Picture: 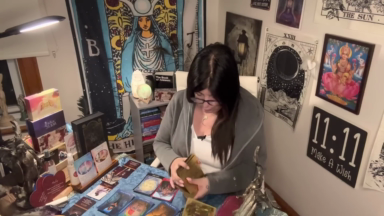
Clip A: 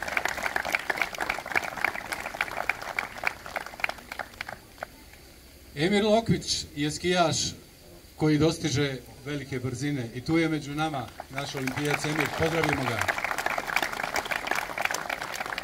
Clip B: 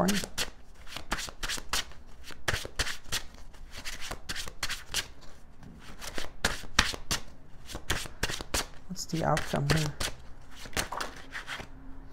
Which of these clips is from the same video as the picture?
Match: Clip B